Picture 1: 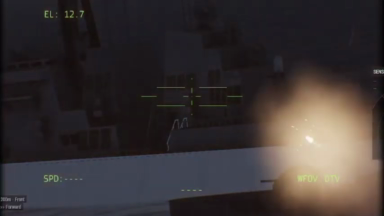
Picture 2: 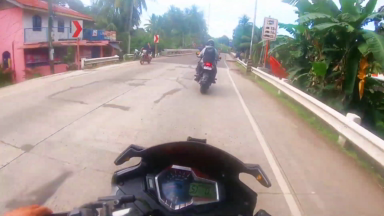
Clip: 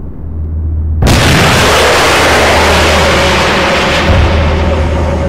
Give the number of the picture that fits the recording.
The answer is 1